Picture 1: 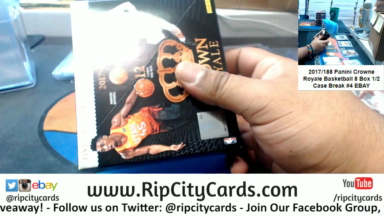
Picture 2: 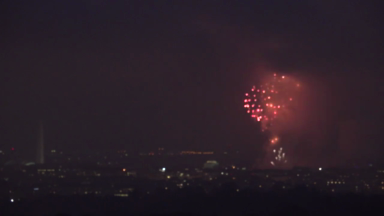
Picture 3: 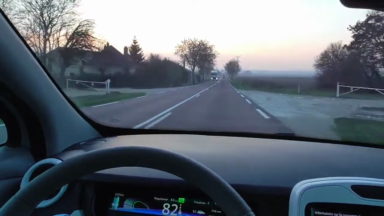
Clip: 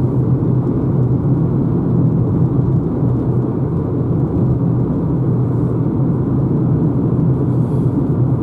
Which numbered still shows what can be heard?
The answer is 3